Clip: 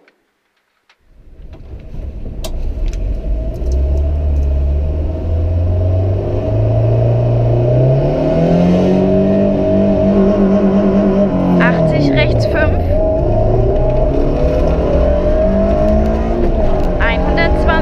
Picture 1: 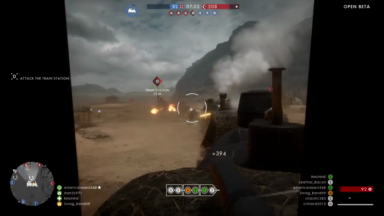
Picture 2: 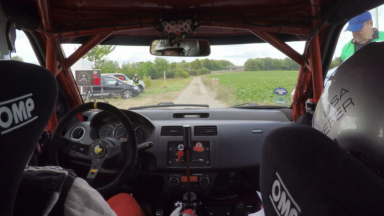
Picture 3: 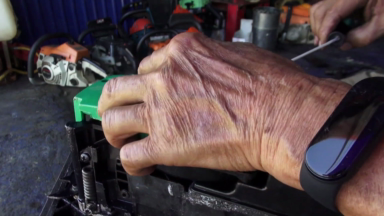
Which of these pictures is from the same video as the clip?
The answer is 2